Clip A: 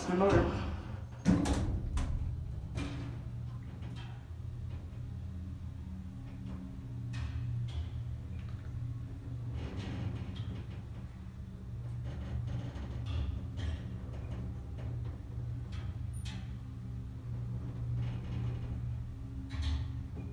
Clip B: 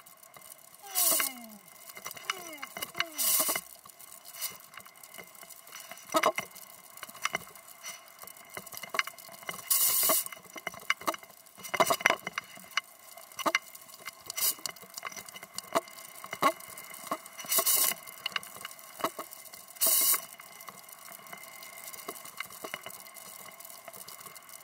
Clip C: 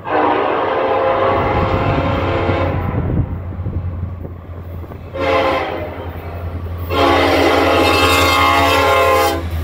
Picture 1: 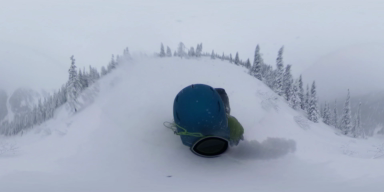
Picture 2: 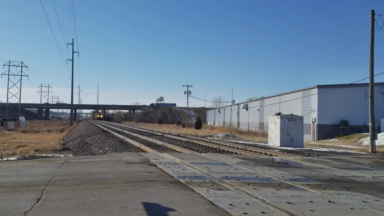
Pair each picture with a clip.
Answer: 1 B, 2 C